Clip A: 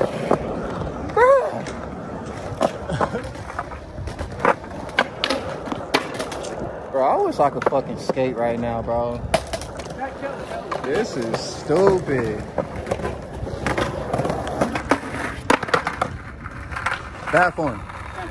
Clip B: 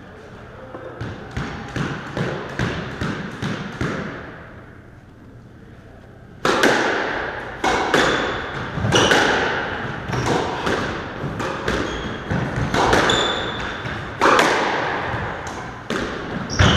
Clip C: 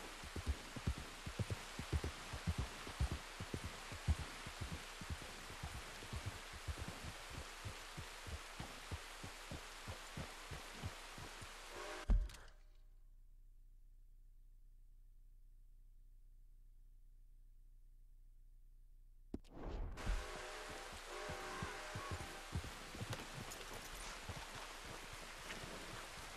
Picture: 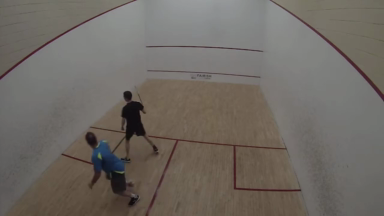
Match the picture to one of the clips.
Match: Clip B